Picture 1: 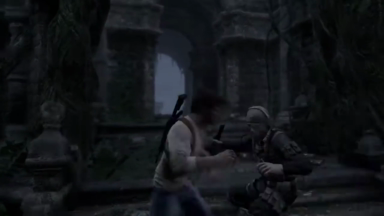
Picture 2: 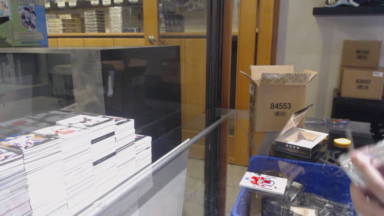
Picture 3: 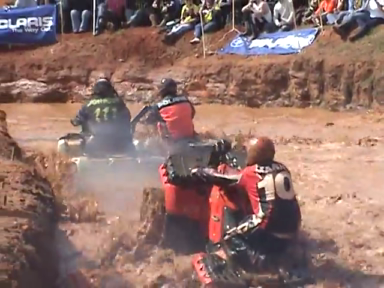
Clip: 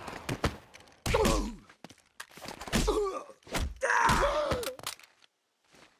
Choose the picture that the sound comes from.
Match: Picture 1